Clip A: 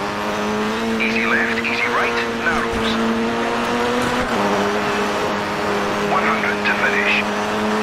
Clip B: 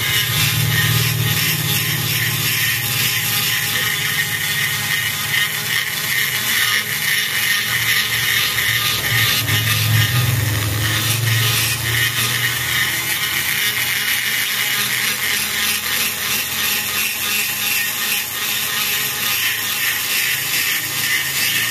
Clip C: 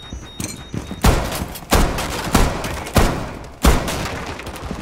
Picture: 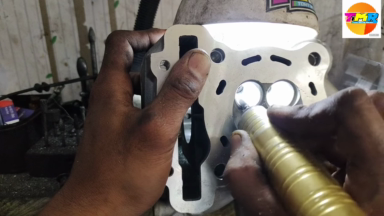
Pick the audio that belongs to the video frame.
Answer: B